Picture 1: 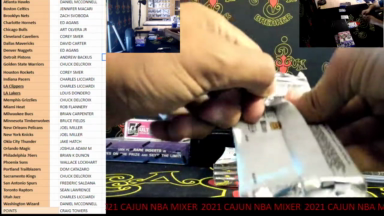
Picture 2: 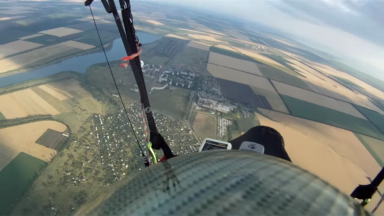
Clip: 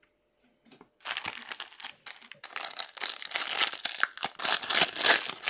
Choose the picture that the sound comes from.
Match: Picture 1